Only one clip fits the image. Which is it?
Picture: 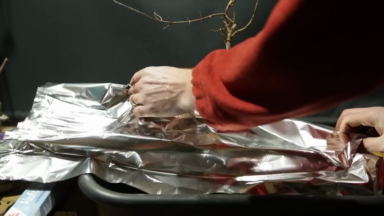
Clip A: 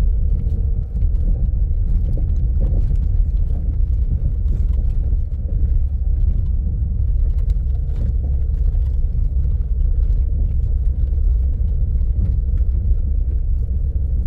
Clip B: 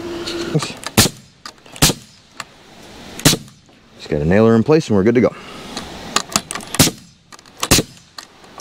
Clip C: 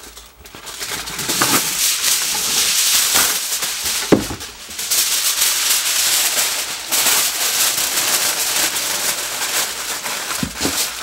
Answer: C